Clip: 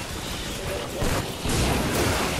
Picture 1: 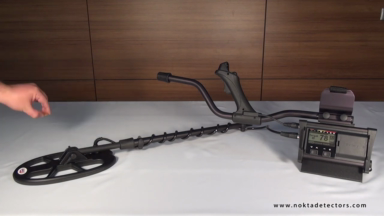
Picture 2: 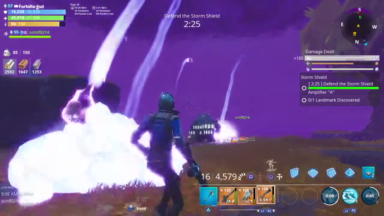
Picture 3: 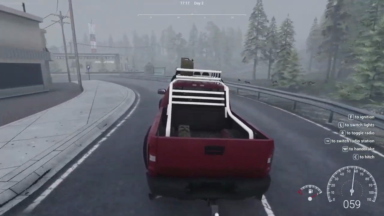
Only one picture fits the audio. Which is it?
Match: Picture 2